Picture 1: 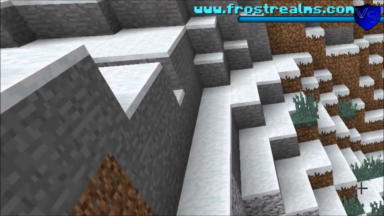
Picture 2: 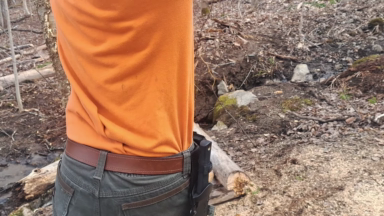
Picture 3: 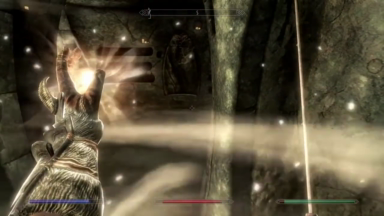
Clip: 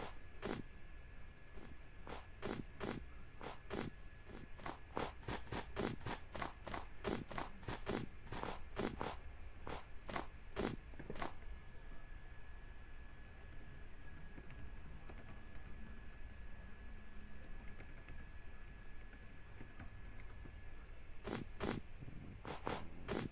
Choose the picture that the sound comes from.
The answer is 1